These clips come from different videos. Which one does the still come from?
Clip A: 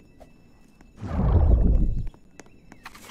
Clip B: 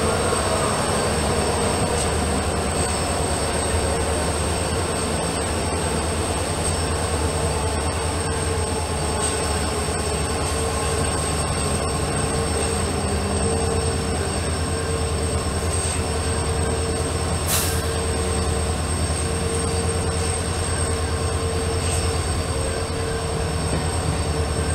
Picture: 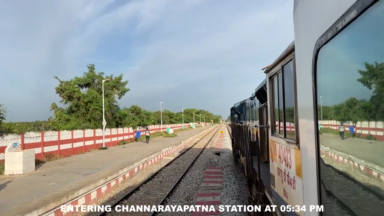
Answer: B